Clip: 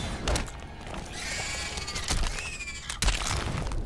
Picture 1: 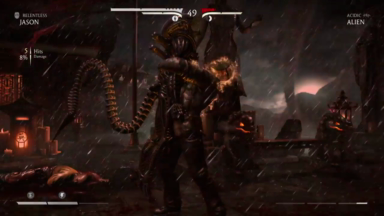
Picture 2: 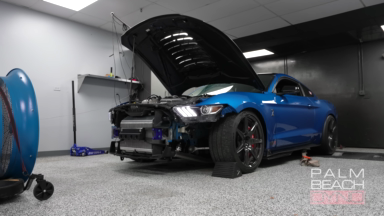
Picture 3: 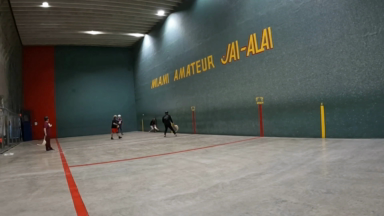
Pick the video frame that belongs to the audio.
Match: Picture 1